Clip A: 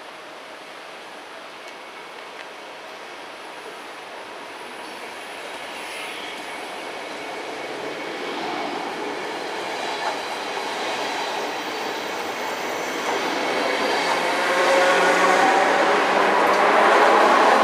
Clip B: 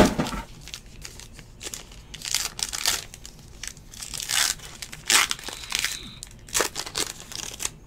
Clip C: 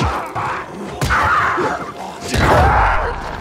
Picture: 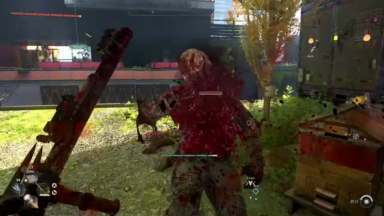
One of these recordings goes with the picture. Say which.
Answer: C